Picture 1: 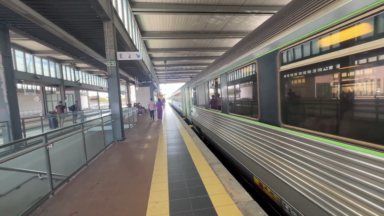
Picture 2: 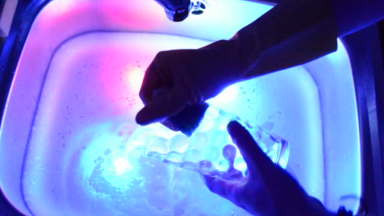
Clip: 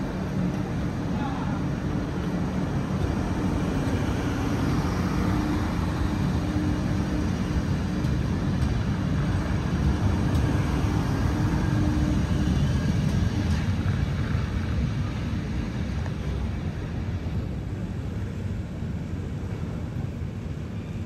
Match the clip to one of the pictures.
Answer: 1